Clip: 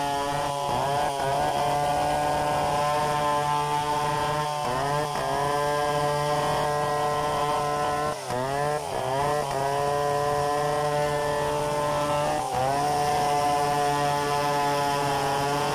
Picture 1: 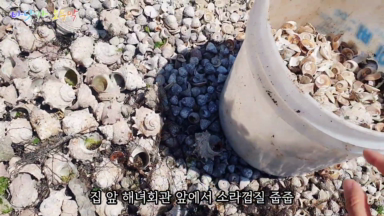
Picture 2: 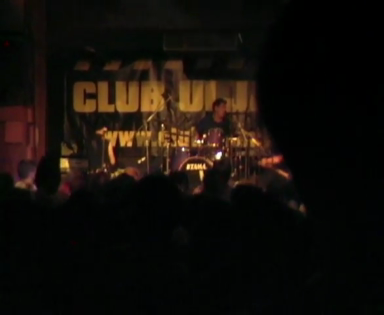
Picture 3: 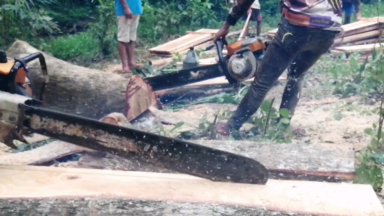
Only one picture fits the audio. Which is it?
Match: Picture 3